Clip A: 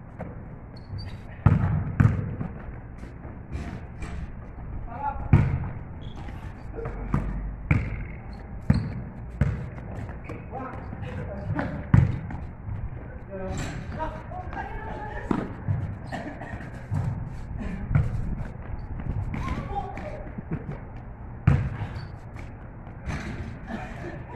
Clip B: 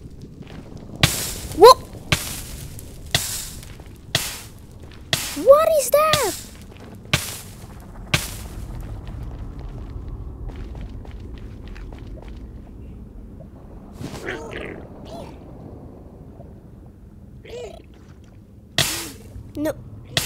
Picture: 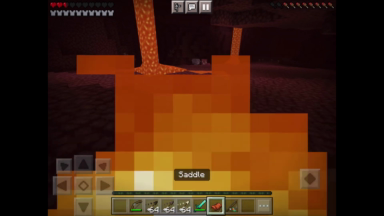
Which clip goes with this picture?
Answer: B